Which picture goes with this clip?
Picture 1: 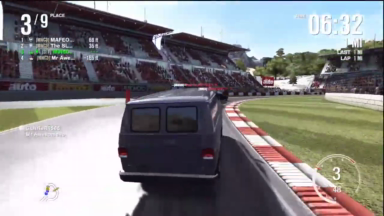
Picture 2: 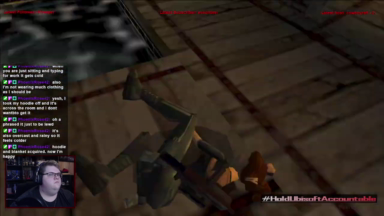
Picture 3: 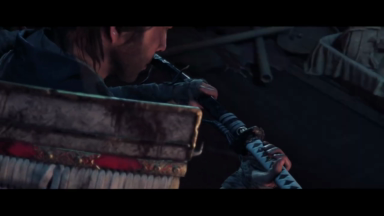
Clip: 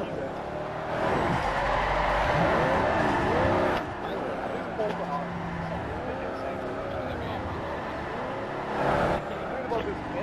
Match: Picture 1